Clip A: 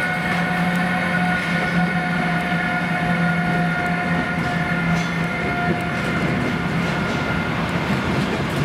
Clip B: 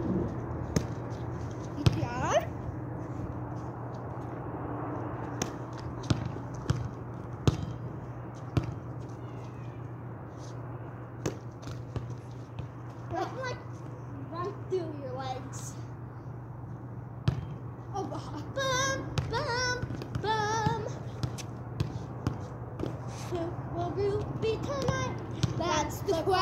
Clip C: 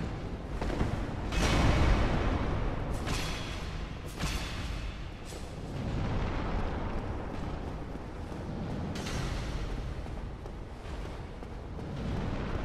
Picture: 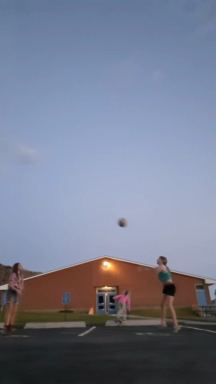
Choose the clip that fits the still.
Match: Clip B